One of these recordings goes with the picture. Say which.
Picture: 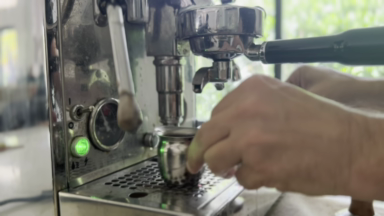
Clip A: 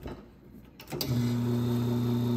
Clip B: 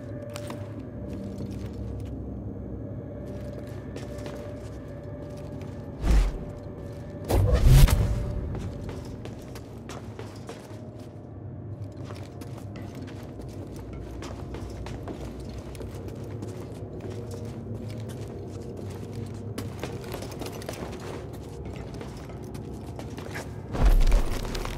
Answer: A